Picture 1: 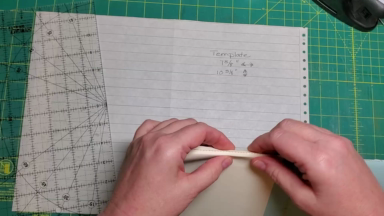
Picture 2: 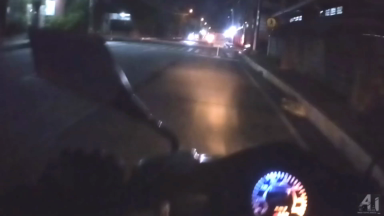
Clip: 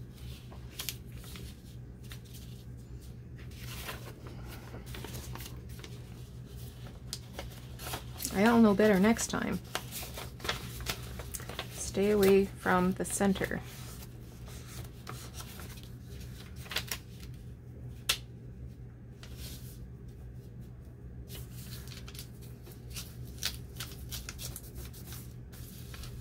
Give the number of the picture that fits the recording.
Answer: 1